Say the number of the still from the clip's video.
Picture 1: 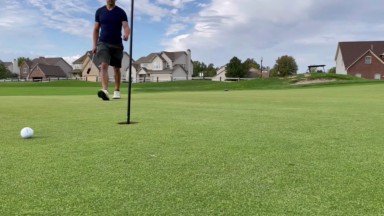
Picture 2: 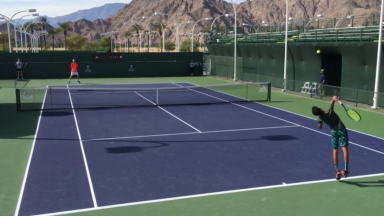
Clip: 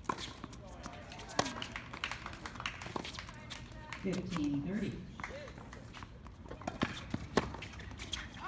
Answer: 2